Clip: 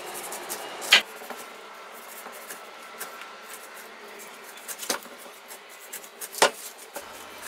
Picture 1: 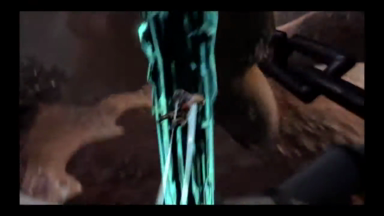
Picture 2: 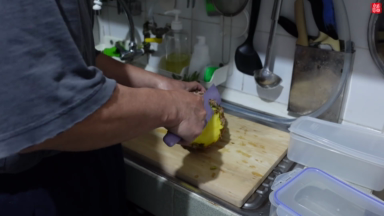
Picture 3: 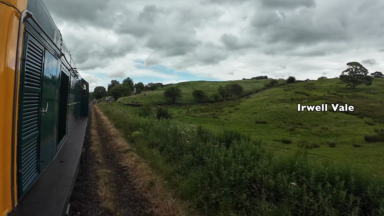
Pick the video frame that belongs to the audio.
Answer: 2